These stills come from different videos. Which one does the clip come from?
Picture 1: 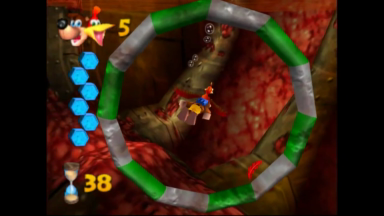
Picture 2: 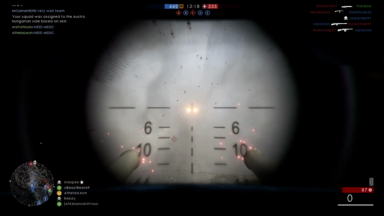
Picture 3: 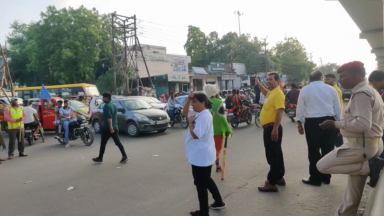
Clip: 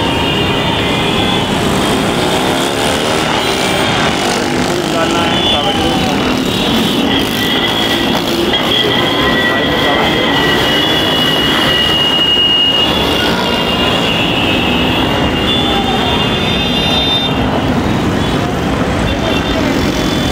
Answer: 3